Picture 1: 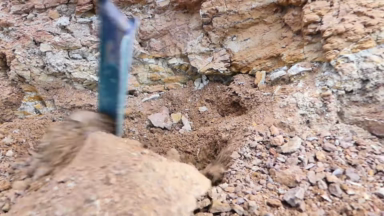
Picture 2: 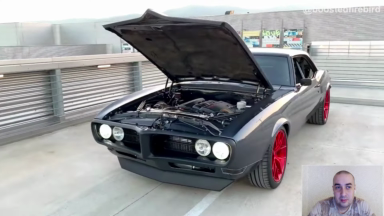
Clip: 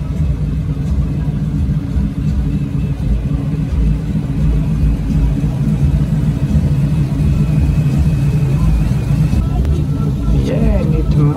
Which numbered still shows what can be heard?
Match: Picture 2